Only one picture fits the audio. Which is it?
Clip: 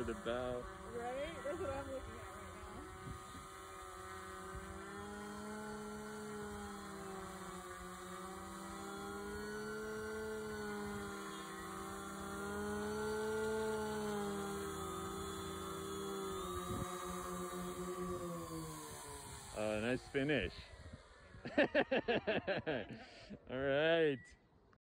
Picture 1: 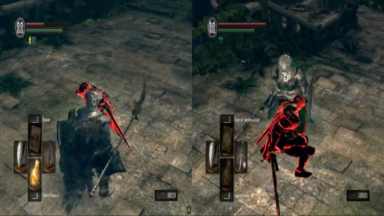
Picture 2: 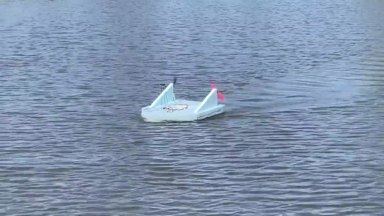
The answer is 2